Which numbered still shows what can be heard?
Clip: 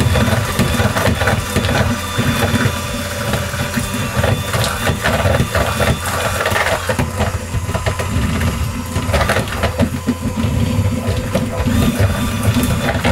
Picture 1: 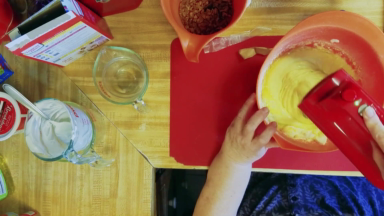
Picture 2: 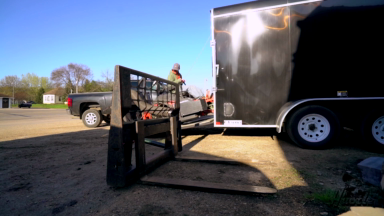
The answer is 1